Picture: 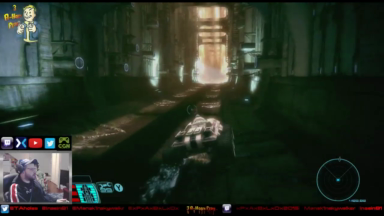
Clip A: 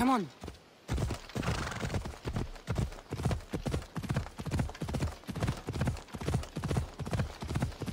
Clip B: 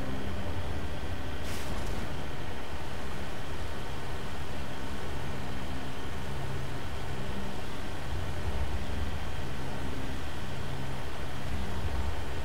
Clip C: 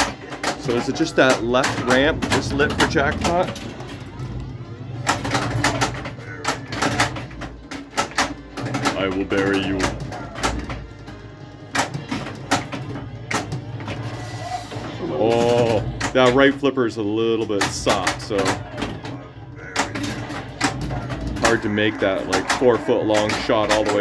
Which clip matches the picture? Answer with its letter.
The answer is B